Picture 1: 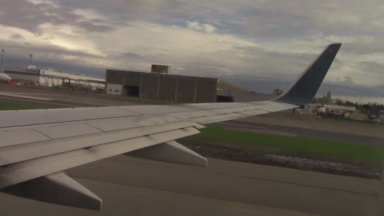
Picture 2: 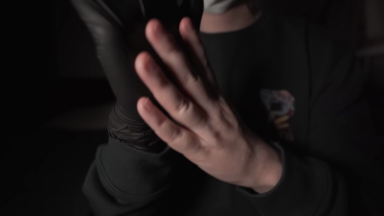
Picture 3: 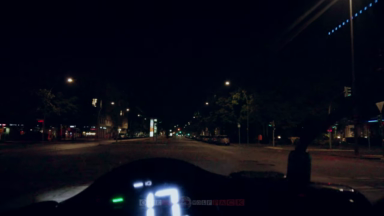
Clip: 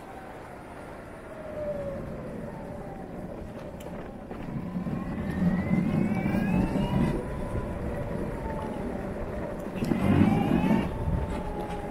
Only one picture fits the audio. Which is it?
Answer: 3